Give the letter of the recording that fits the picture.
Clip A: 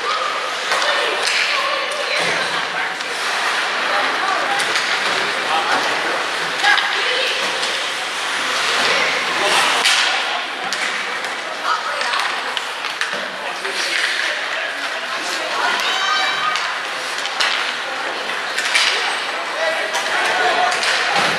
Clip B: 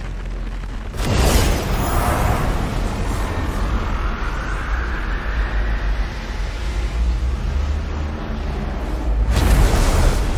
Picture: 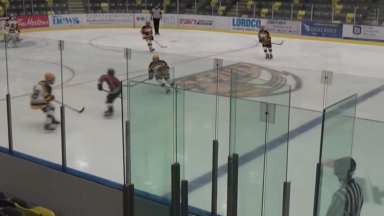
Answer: A